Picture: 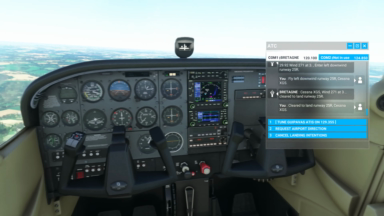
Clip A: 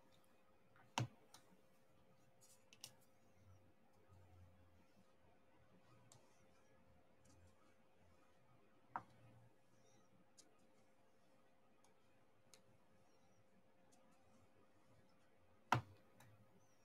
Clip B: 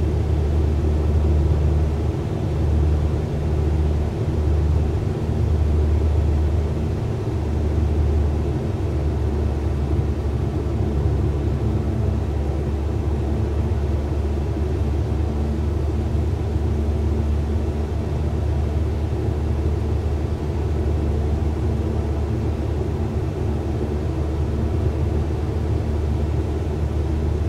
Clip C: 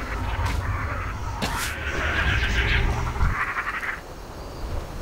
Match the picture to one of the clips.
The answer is B